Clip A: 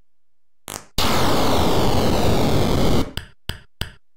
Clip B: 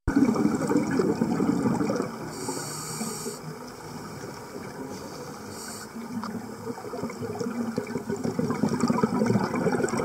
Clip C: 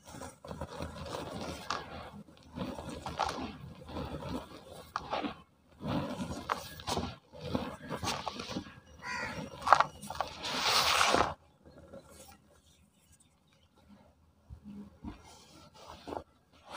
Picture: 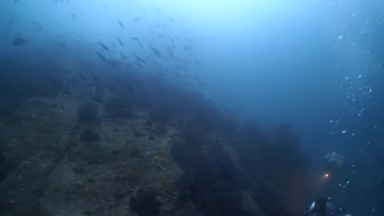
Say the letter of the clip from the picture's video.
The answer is B